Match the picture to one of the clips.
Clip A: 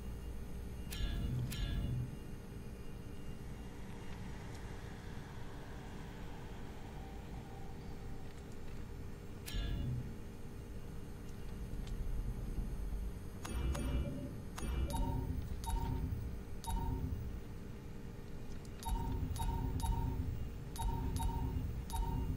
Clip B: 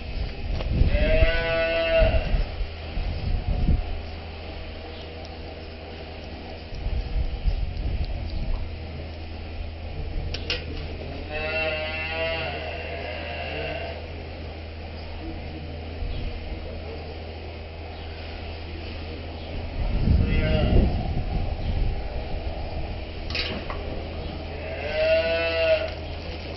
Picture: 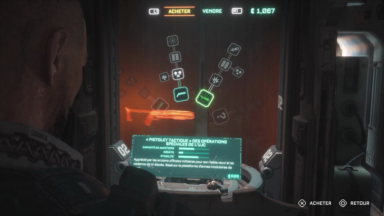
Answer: A